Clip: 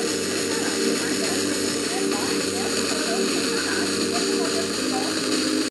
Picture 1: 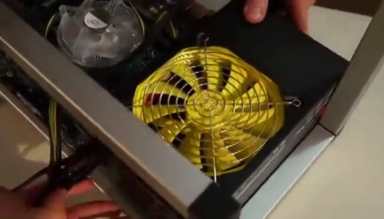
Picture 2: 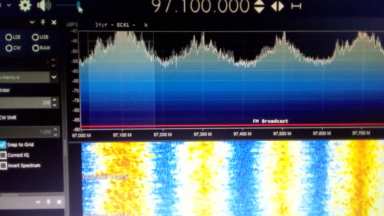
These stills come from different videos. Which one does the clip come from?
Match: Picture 2